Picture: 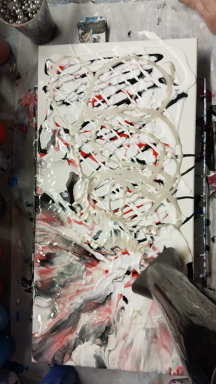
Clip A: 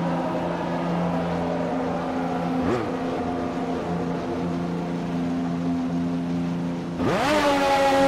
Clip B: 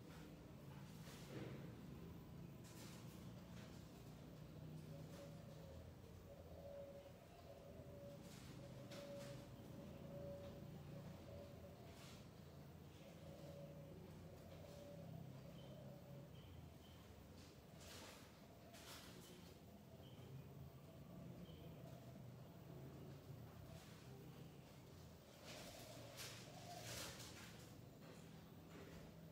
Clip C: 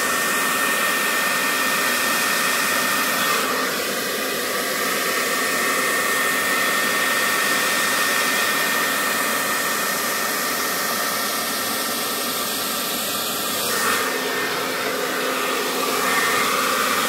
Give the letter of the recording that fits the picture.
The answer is C